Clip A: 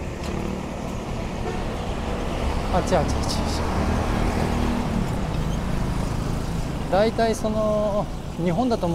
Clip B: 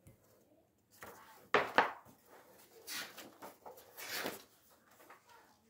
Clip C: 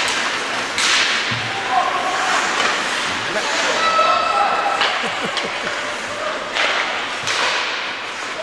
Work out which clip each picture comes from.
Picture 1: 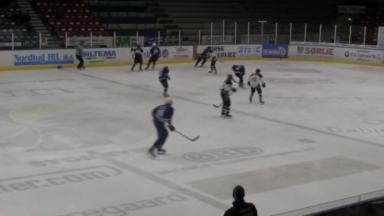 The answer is C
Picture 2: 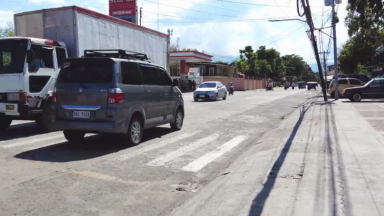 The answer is A